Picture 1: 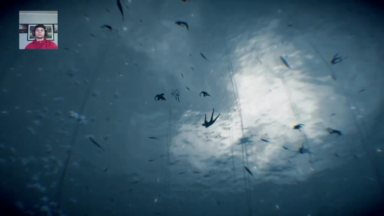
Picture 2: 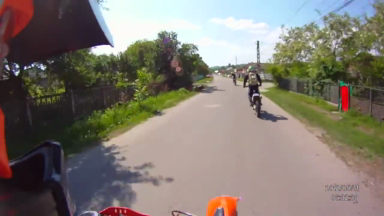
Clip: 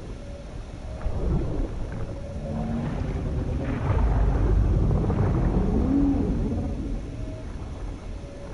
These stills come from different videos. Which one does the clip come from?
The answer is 1